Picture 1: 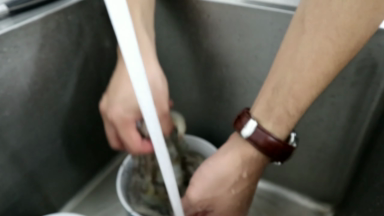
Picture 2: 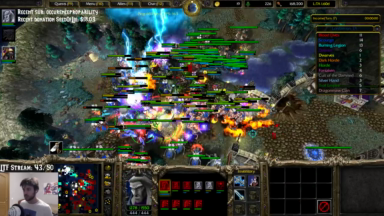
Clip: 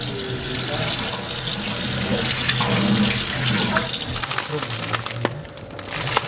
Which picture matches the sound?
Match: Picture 1